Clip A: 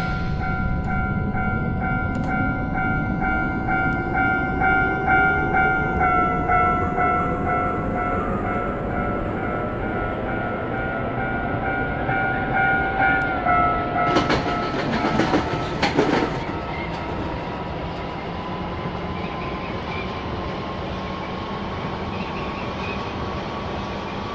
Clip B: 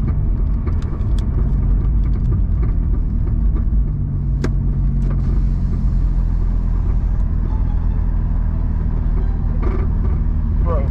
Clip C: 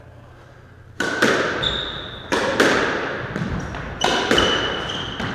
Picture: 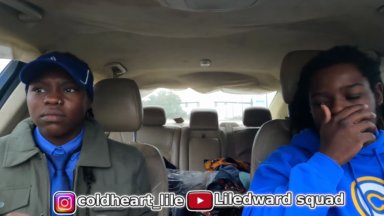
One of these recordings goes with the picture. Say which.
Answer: B